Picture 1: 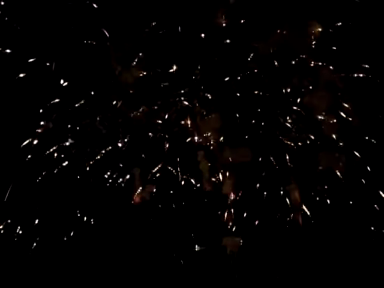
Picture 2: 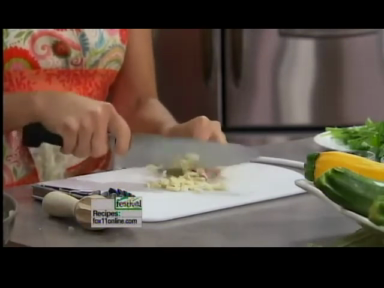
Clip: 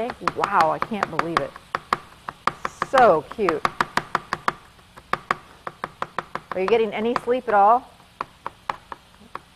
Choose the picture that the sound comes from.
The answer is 2